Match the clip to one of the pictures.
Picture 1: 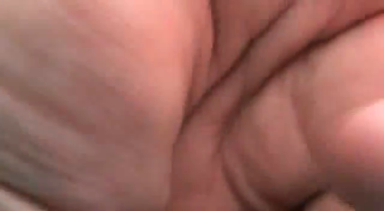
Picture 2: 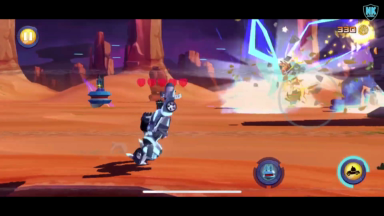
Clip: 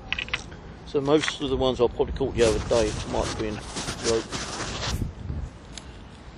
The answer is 1